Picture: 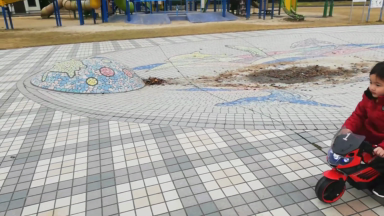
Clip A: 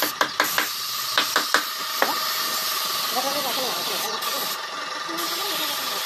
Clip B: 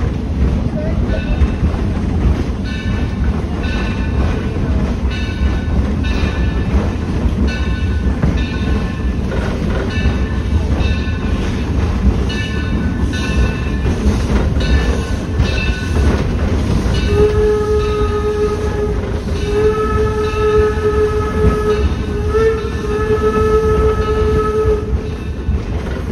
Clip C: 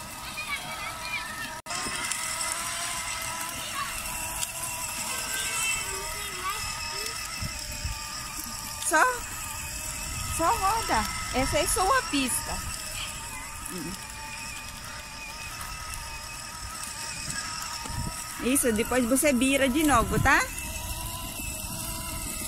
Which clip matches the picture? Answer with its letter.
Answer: C